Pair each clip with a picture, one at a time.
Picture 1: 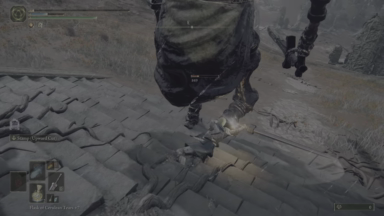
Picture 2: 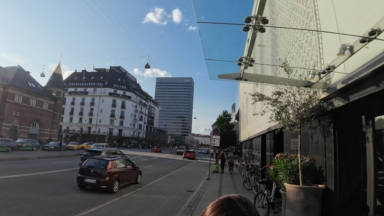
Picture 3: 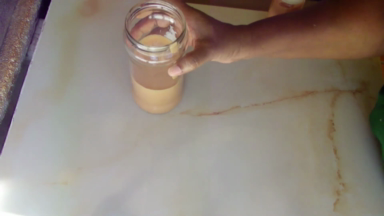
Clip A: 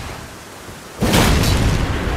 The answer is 1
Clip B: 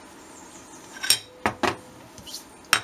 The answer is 3